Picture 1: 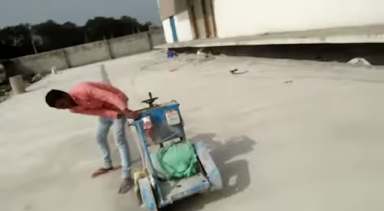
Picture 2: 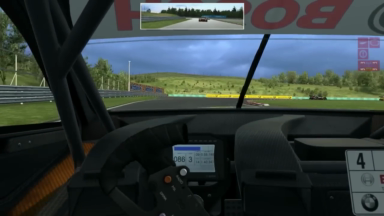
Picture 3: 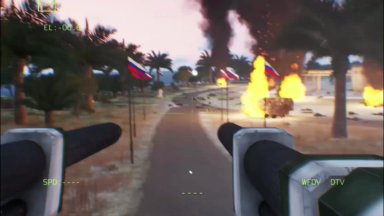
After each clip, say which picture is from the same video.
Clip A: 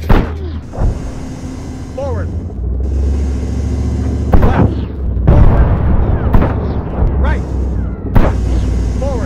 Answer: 3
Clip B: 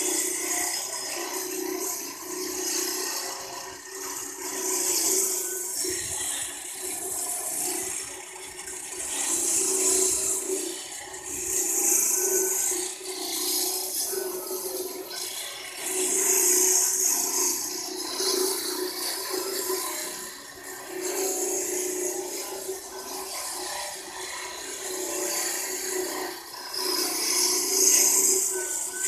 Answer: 1